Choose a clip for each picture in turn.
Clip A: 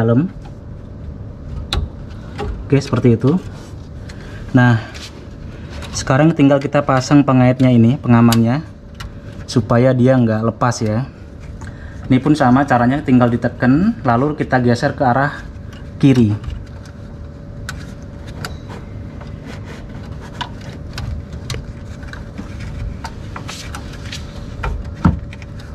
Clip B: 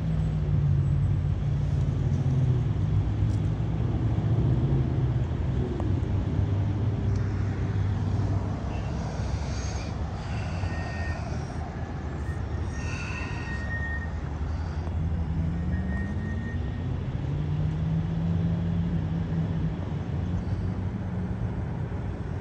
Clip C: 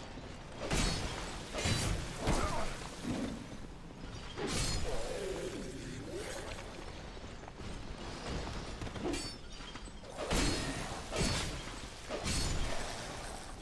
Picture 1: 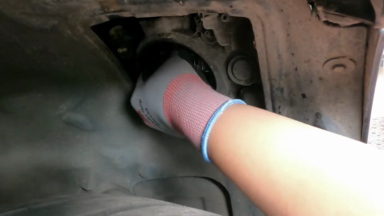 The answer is A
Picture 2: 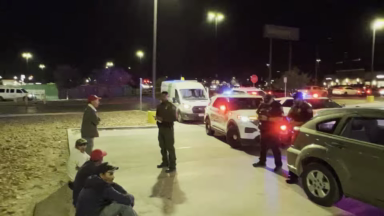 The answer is B